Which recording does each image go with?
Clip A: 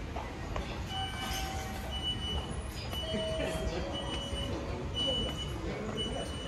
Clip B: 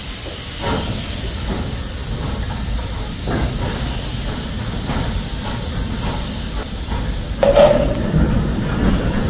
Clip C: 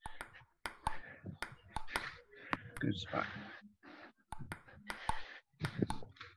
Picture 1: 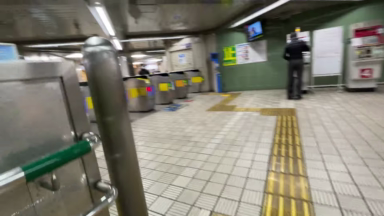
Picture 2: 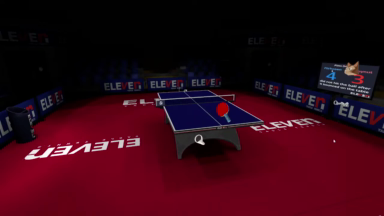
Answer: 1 A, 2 C